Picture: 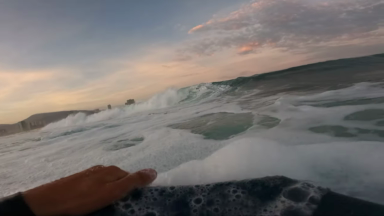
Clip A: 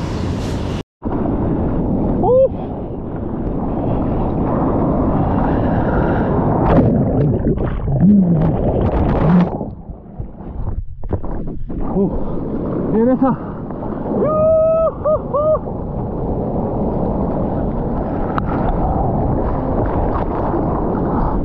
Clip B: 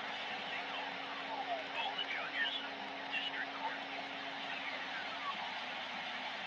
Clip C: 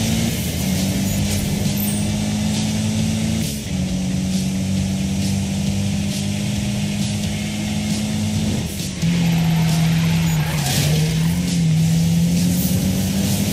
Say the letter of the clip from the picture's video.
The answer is A